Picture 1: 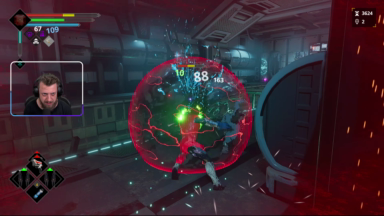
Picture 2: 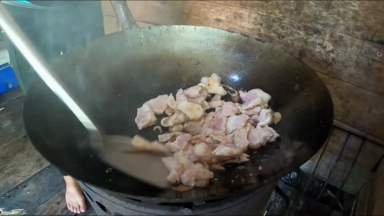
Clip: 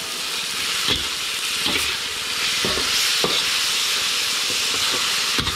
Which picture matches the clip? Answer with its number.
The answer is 2